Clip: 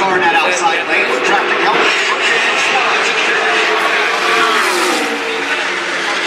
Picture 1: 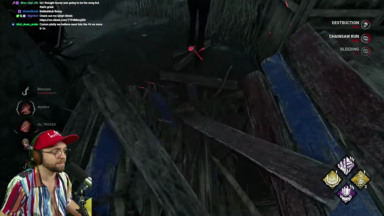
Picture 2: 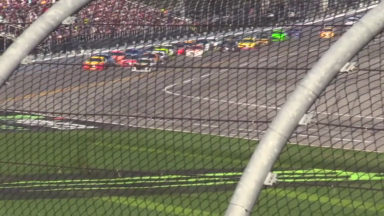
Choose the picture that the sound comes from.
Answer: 2